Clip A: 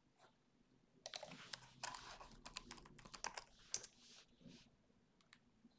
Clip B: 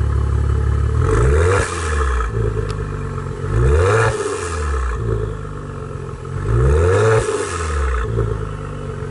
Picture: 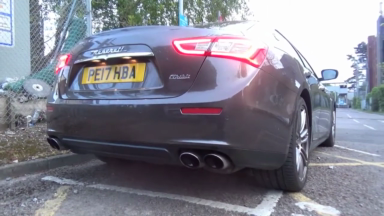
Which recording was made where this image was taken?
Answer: B